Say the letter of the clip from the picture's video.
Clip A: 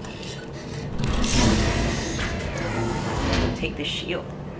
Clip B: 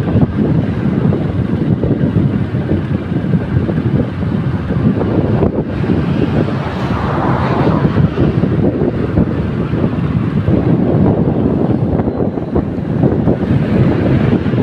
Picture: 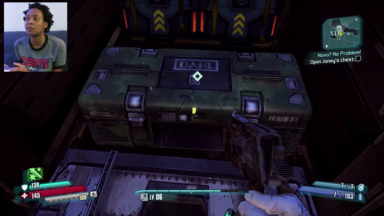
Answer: A